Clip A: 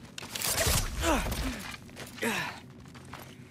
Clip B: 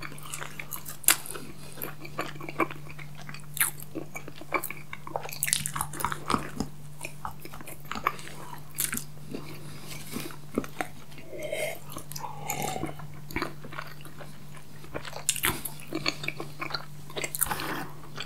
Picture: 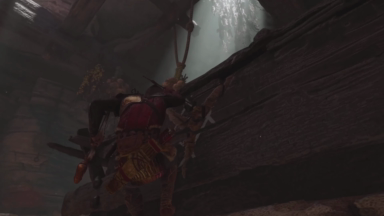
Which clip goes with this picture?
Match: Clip A